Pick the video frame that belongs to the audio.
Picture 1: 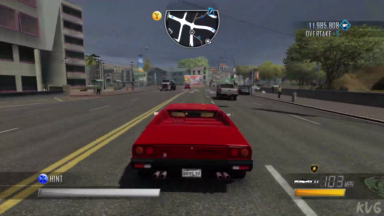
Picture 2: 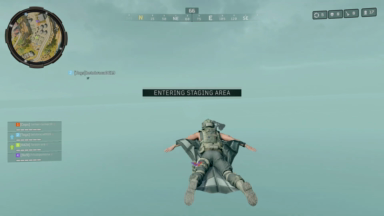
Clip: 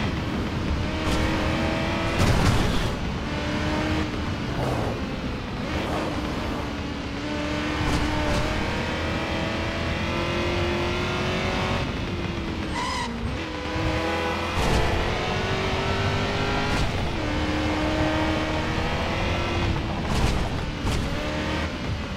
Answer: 1